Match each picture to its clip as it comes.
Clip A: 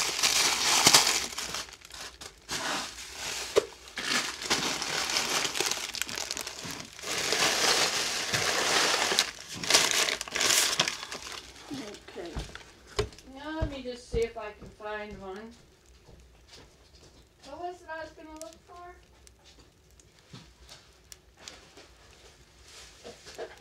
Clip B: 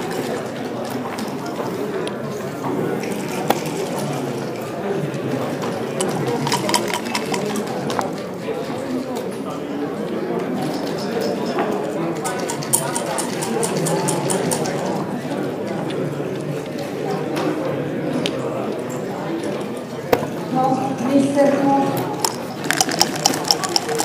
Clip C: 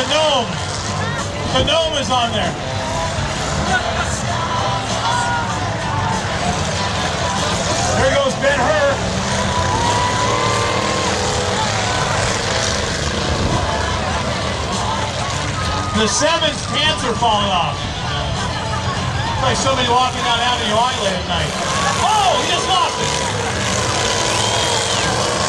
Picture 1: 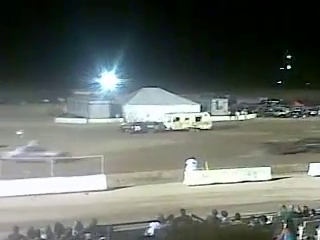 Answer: C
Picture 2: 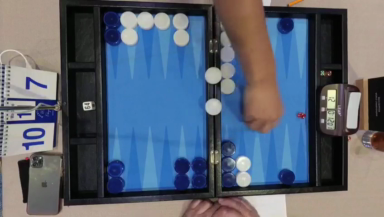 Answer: B